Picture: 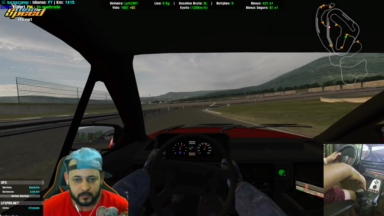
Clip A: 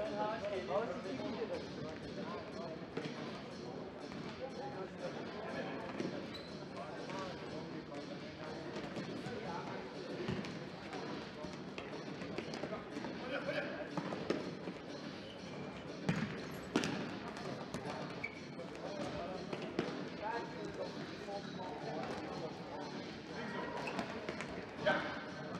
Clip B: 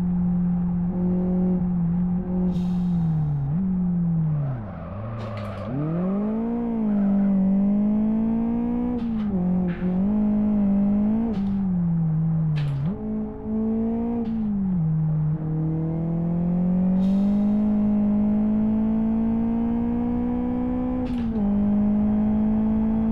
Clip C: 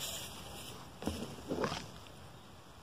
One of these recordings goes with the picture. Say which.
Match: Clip B